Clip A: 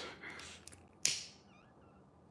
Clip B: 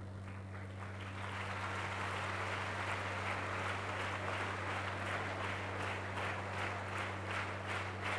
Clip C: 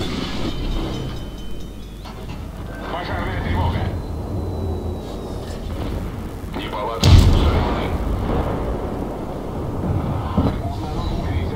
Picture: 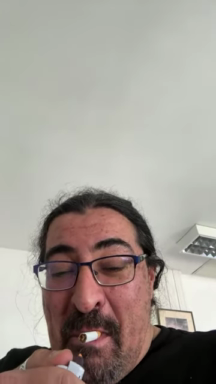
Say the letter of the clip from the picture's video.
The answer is A